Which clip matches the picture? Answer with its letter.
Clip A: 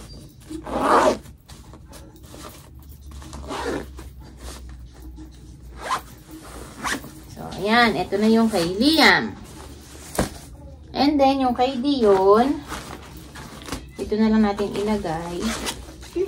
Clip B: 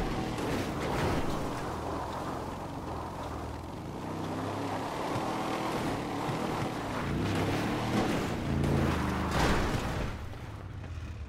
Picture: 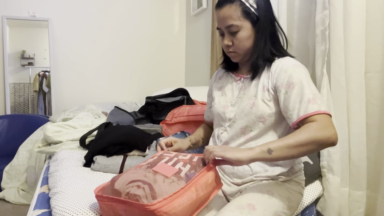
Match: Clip A